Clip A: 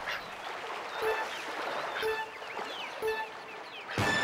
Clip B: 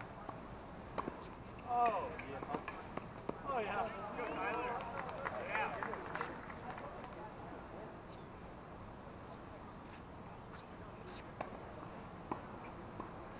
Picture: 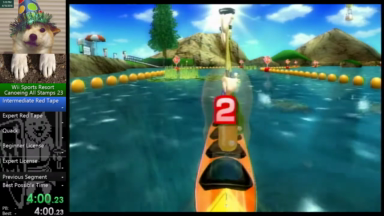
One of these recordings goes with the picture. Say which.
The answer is A